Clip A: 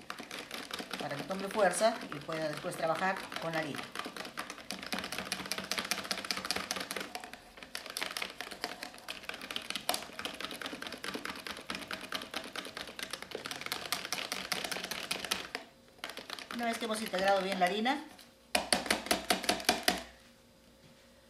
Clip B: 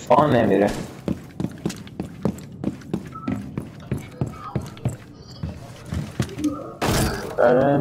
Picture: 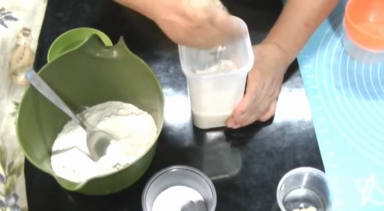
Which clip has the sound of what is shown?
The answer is A